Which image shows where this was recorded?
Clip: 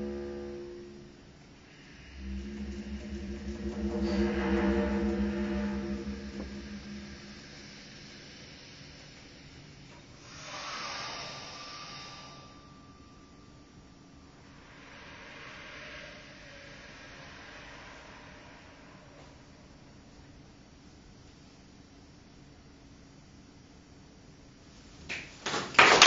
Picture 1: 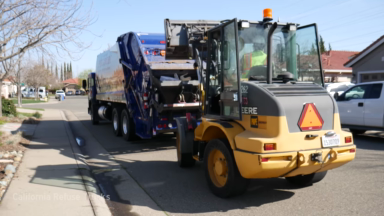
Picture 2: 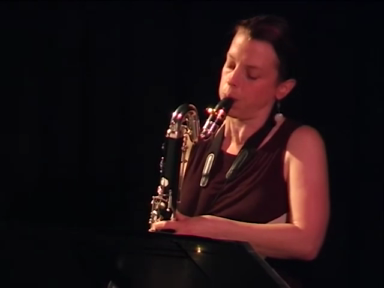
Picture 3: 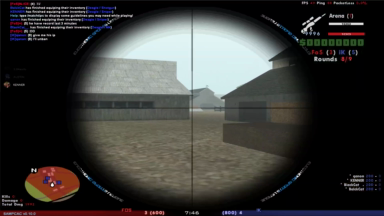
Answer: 2